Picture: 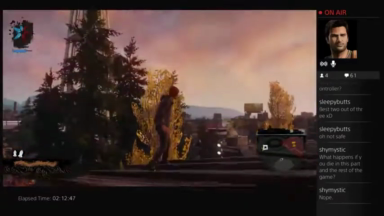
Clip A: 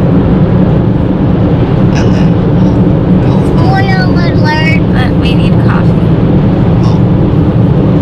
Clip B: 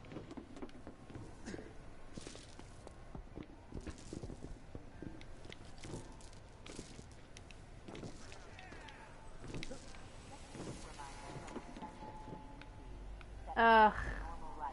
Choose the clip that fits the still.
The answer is B